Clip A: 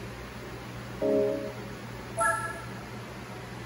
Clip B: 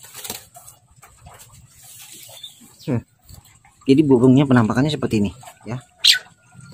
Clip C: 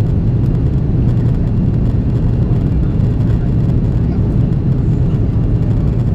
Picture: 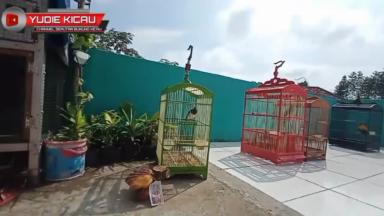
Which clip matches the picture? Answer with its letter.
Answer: B